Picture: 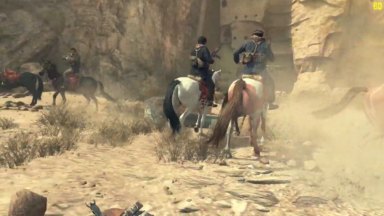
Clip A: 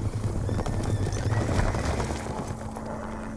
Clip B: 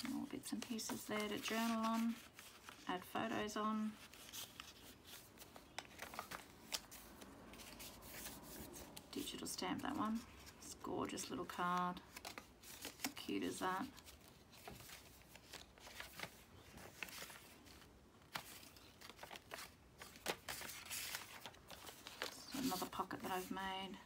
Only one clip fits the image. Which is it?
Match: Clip A